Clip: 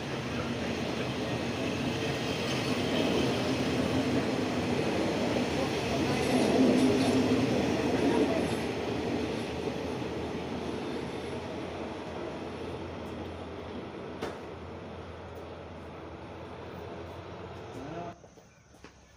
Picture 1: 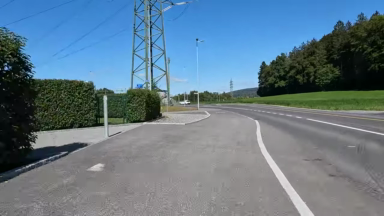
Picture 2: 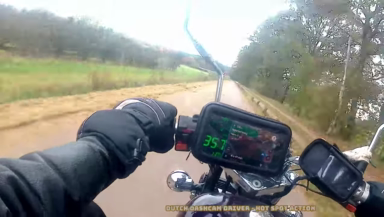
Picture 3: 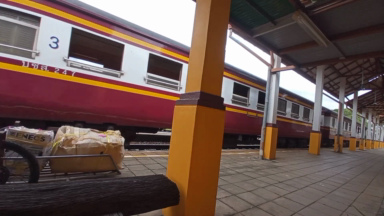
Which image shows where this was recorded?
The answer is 3